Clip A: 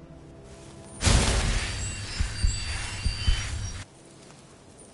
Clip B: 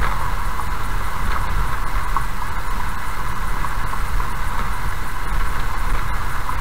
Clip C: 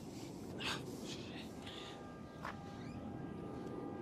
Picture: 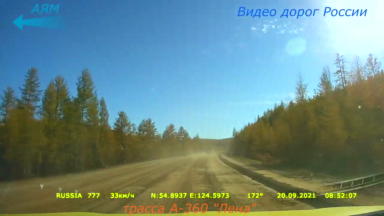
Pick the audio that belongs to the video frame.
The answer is B